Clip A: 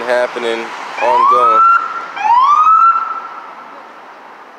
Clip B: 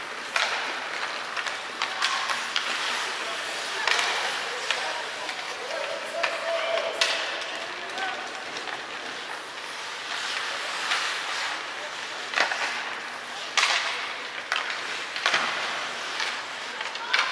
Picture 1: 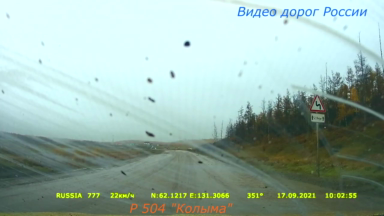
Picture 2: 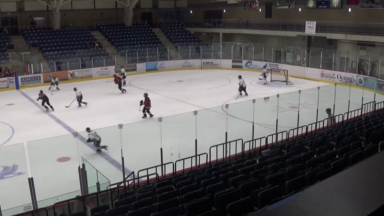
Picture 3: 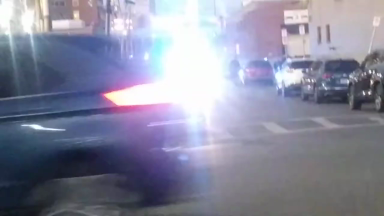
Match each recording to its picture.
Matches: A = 3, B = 2